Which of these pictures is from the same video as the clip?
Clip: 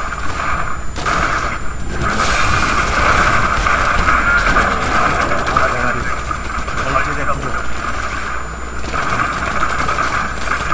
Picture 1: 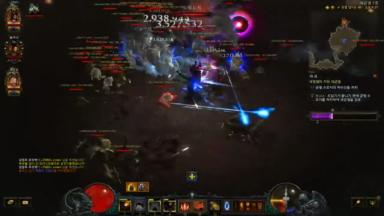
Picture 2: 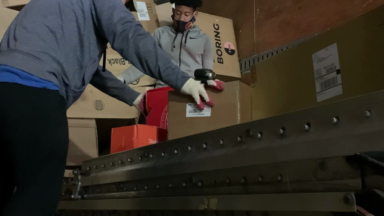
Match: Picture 1